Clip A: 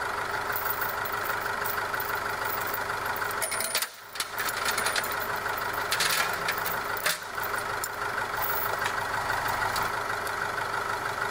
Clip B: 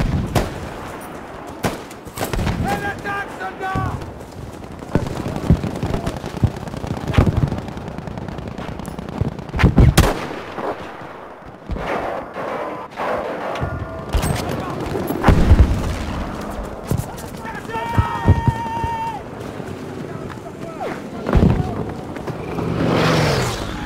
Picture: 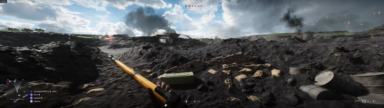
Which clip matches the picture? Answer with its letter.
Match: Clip B